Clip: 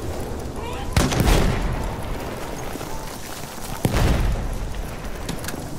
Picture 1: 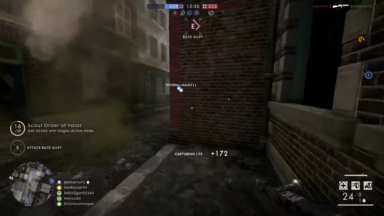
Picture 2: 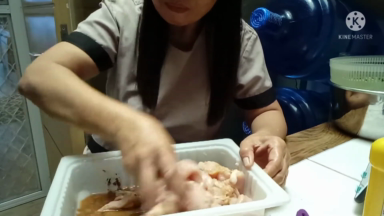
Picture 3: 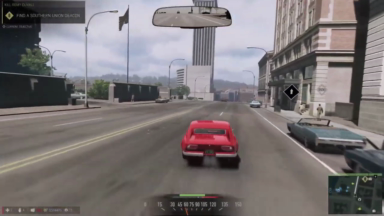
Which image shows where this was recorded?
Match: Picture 1